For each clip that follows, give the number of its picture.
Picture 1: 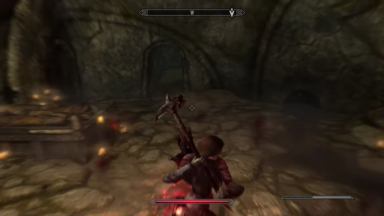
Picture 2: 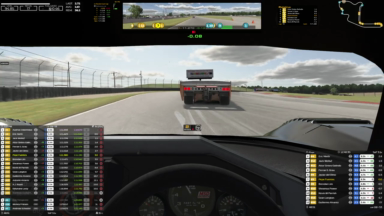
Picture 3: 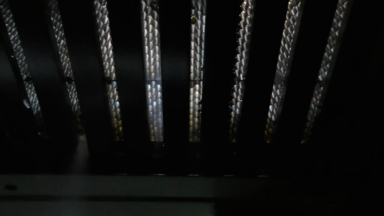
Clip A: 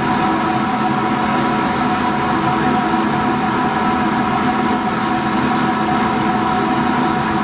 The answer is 3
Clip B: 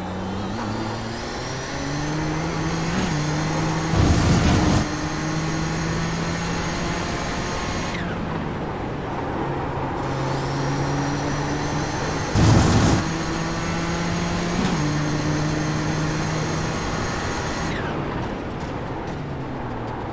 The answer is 2